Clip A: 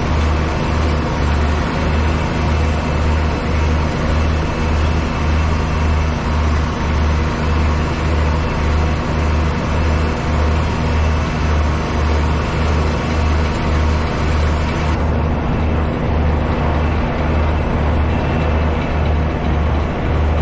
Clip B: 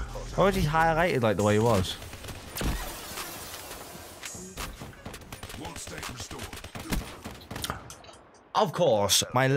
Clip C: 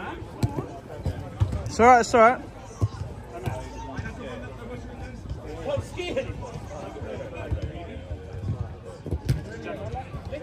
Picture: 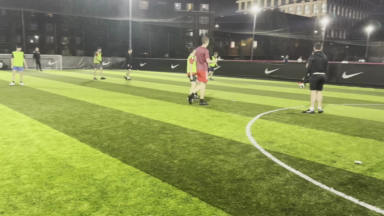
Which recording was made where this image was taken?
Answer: C